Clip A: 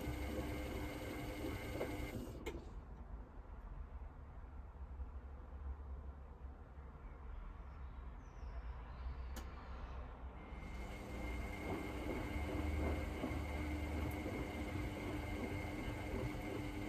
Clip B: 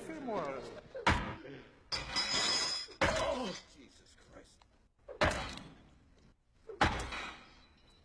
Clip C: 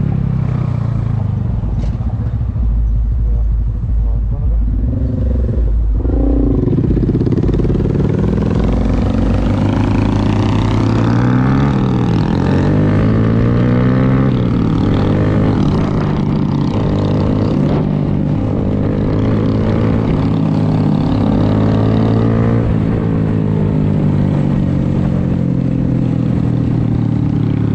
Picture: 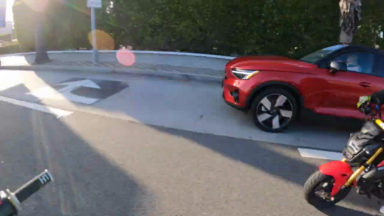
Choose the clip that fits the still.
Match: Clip C